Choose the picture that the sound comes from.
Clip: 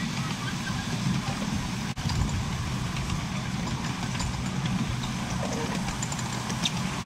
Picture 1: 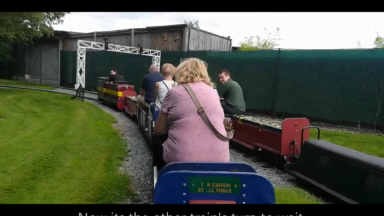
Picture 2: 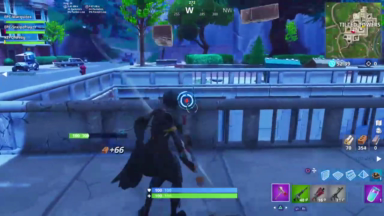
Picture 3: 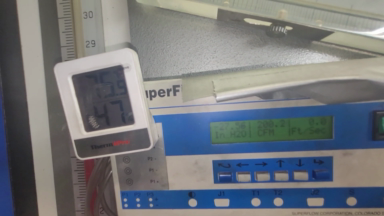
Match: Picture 1